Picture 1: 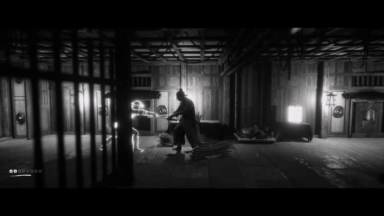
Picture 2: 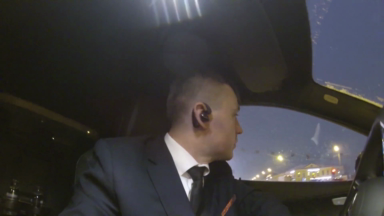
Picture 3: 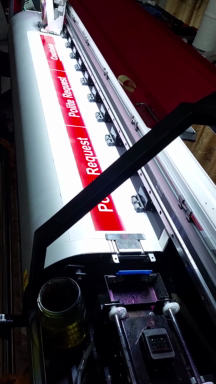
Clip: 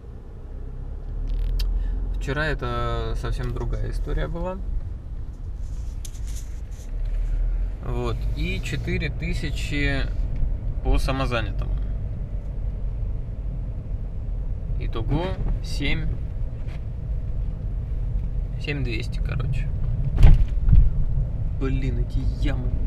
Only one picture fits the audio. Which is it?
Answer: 2